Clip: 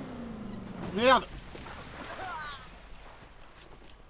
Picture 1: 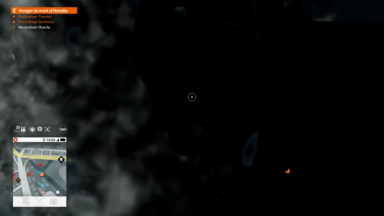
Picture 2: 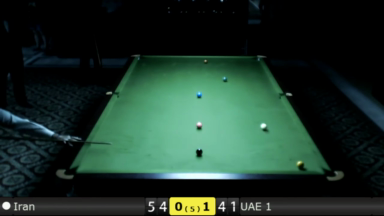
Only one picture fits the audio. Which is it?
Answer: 1